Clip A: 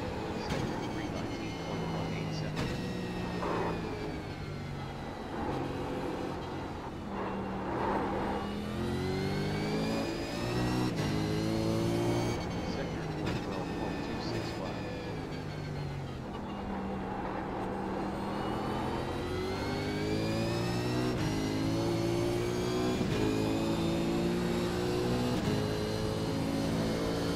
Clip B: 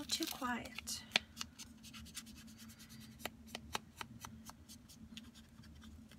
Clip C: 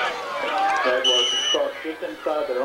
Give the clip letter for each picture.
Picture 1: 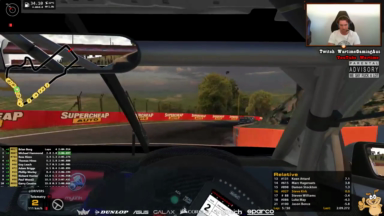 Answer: A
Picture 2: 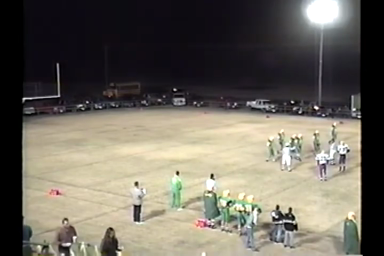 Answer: C